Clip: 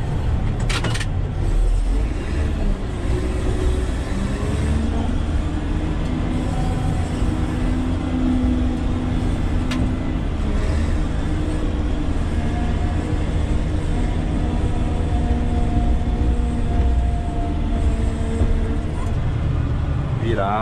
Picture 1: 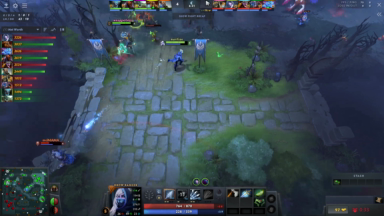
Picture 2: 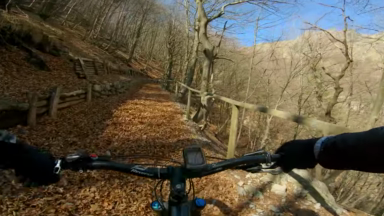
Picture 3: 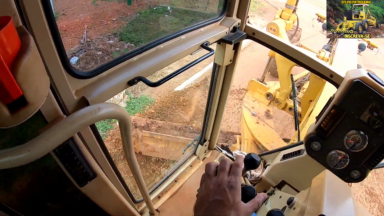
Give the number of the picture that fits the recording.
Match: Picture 3